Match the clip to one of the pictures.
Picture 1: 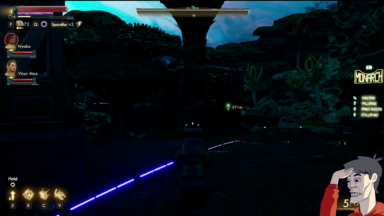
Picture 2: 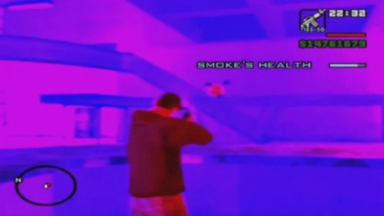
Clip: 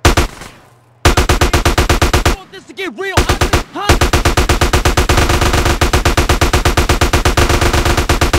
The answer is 2